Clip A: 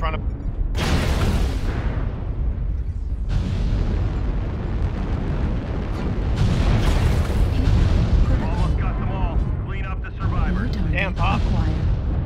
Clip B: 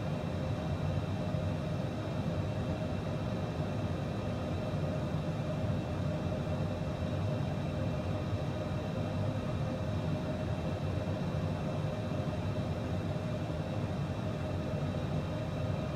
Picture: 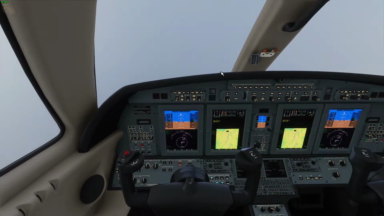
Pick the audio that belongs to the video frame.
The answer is B